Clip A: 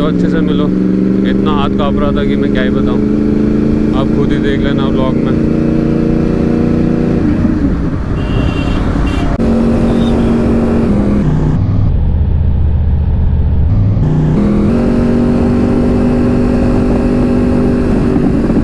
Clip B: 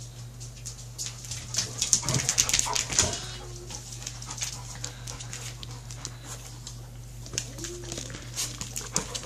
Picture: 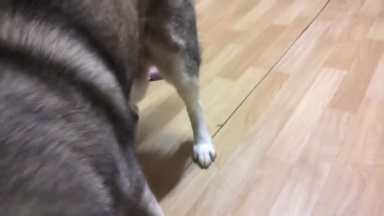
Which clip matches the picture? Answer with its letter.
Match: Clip B